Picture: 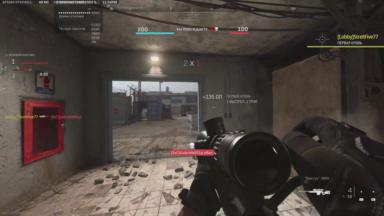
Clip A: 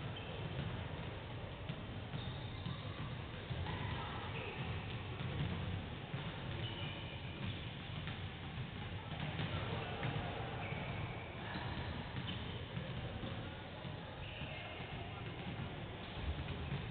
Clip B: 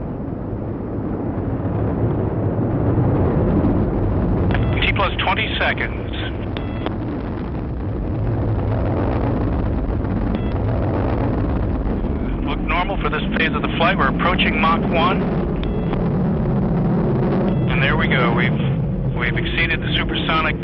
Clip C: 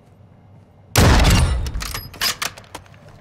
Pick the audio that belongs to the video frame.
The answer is C